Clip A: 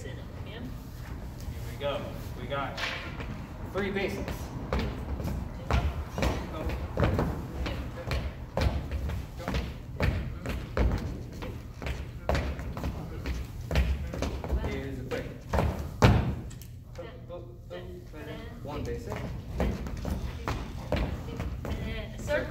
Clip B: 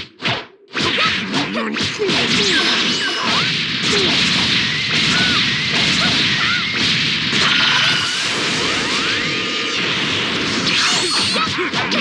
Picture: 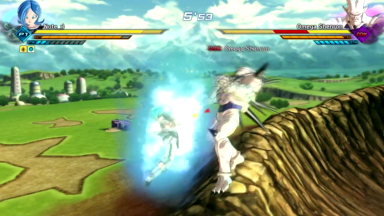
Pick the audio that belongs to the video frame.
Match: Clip B